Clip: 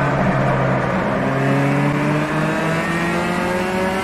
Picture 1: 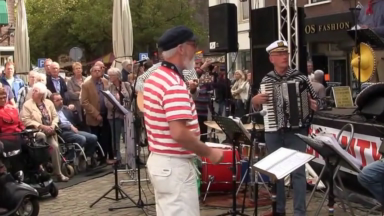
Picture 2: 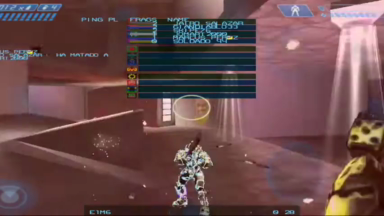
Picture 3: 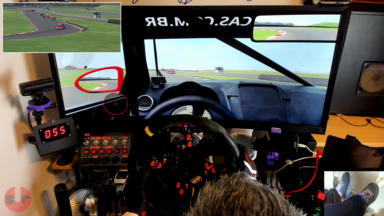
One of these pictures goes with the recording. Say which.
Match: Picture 3